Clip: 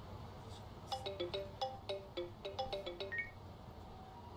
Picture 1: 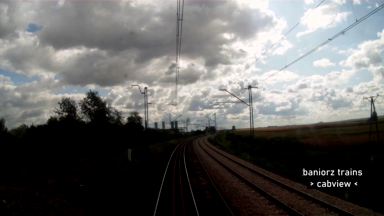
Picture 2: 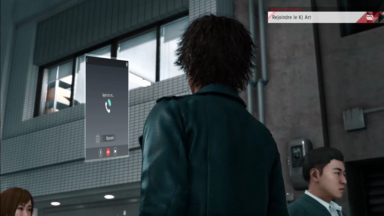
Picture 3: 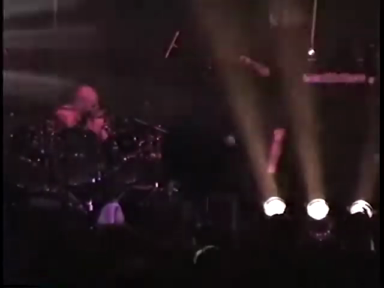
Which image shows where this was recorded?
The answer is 2